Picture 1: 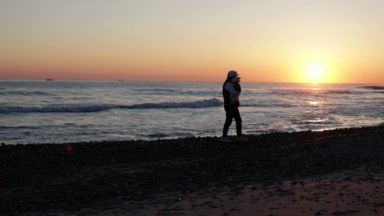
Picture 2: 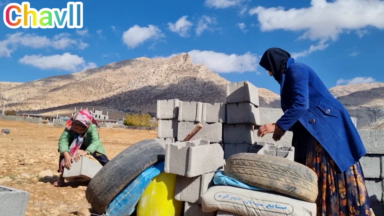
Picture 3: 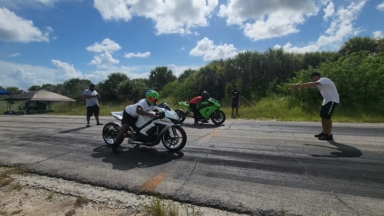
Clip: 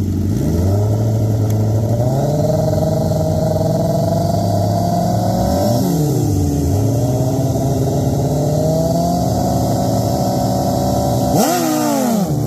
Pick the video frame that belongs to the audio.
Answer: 3